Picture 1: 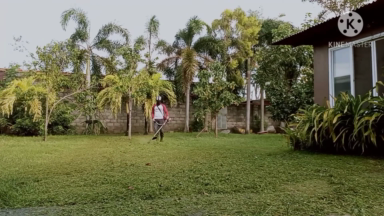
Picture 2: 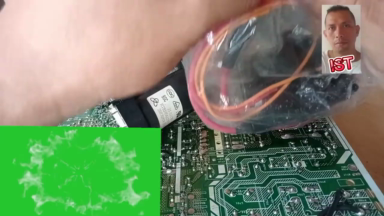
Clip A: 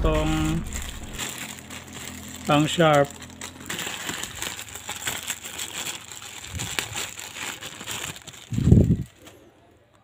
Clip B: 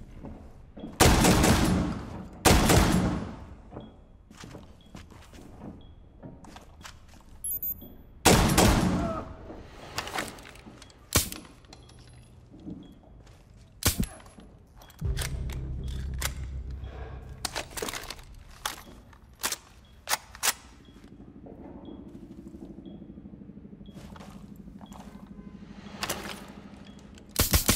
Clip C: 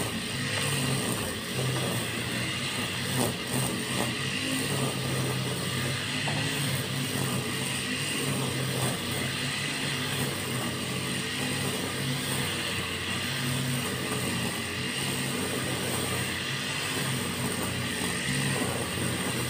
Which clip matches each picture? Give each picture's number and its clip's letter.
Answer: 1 C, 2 A